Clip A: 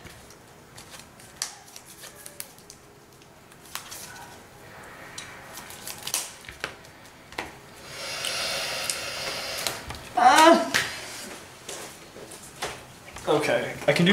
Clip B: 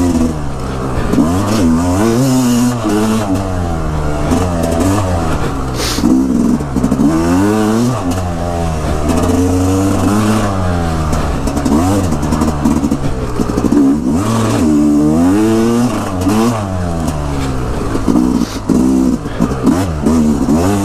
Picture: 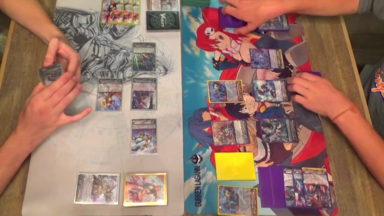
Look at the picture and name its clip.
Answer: A